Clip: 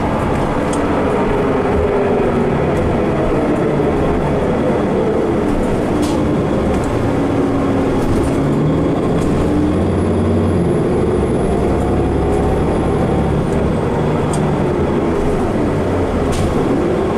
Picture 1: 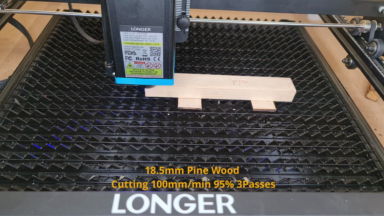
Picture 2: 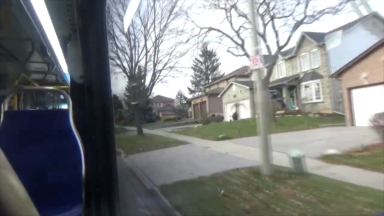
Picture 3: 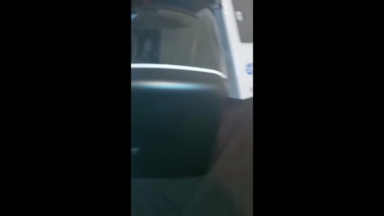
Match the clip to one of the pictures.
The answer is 2